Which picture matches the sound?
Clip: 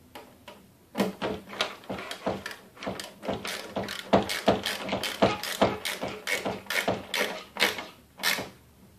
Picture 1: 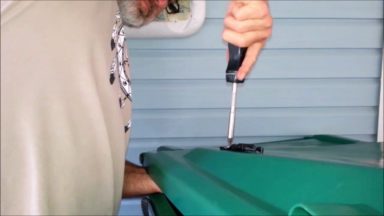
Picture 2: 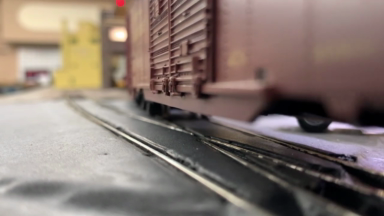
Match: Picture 1